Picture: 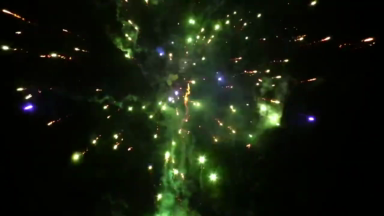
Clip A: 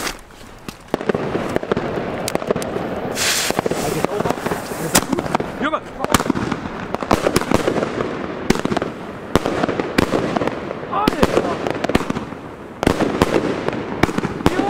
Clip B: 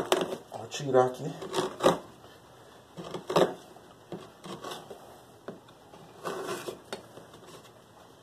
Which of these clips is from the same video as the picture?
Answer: A